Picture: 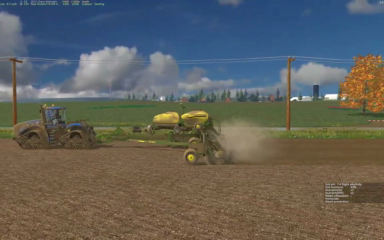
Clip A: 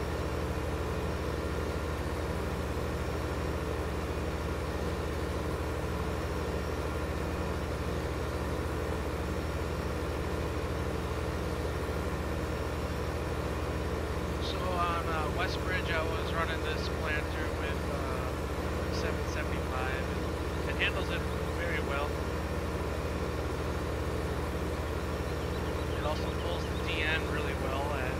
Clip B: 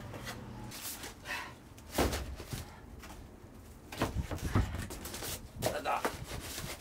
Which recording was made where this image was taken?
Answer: A